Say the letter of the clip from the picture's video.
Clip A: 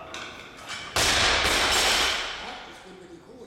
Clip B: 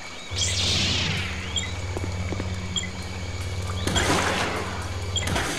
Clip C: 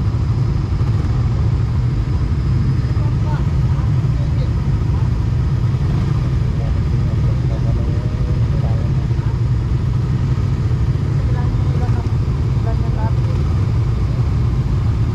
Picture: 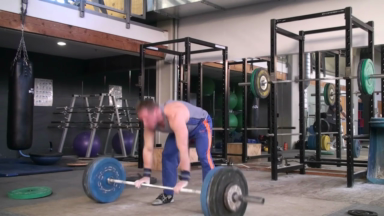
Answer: A